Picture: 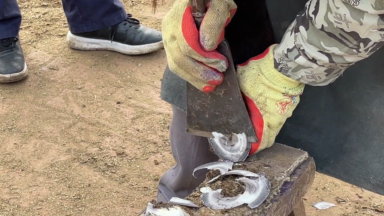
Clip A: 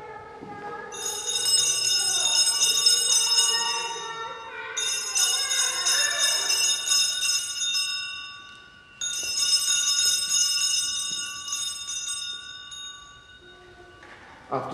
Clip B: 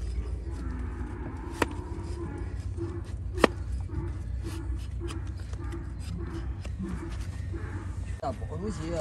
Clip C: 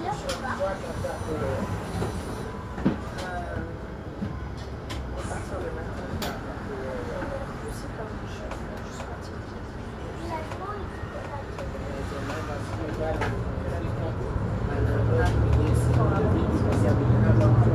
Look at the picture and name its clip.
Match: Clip B